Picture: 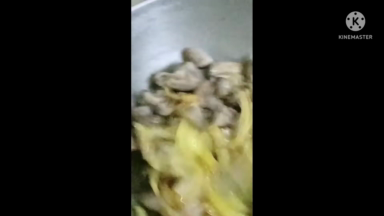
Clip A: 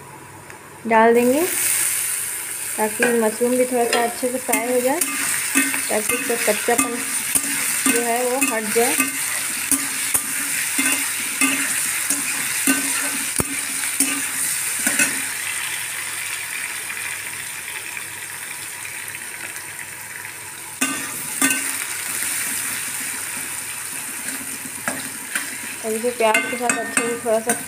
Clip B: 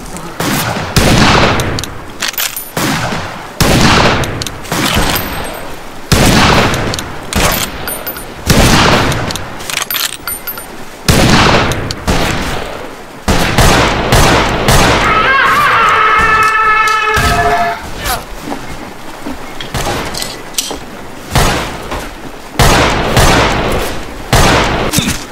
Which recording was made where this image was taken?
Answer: A